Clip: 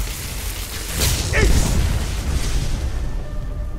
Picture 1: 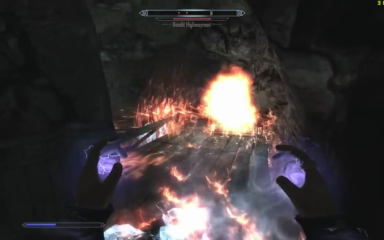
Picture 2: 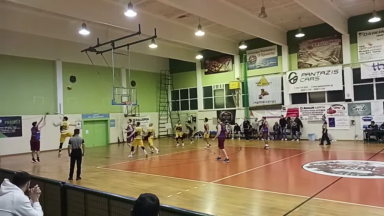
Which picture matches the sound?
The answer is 1